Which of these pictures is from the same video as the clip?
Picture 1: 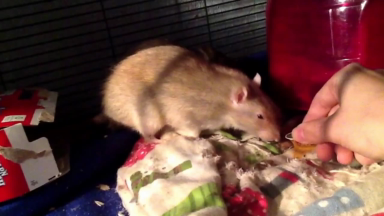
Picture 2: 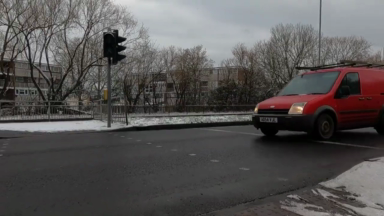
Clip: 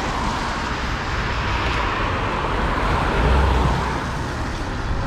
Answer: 2